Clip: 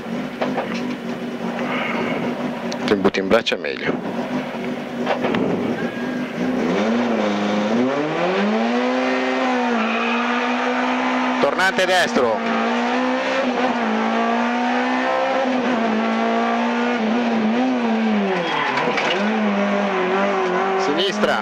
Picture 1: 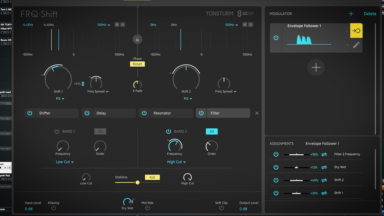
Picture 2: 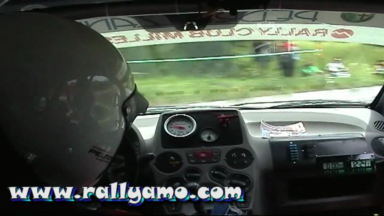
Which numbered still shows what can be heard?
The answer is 2